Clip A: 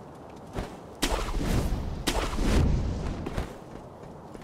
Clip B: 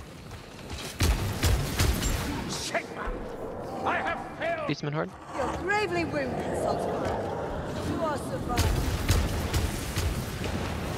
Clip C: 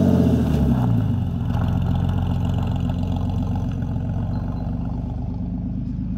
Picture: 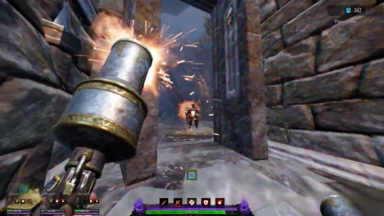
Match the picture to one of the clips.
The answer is B